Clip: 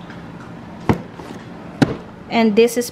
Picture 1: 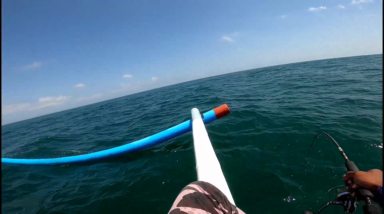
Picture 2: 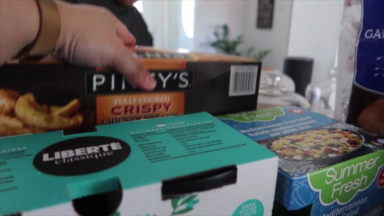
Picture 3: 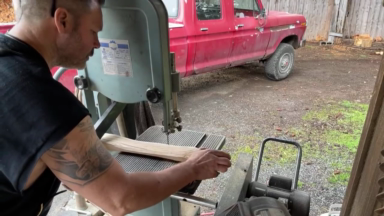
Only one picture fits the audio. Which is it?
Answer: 2